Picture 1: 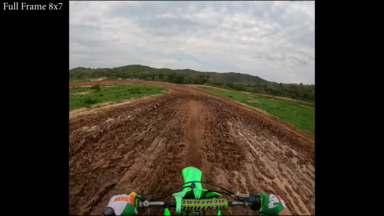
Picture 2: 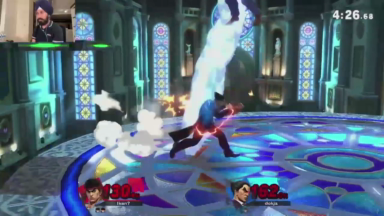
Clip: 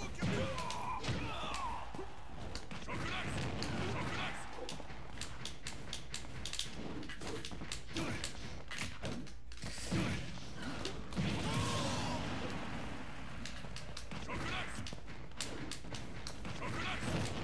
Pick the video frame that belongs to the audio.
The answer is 2